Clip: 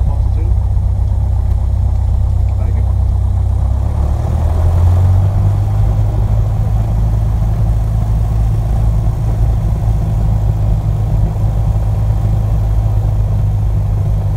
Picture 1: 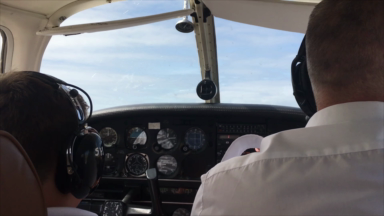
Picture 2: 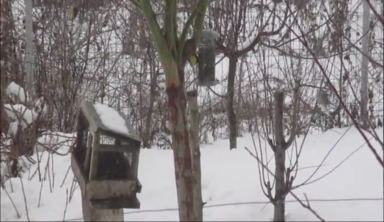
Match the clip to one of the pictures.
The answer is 1